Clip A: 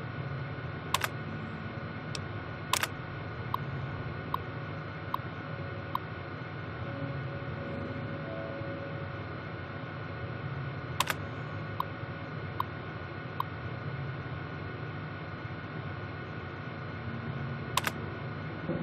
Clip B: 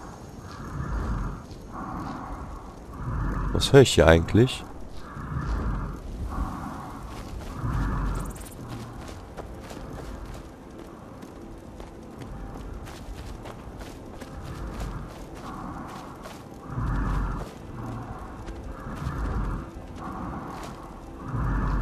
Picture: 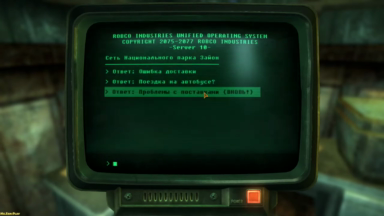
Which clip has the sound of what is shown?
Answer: A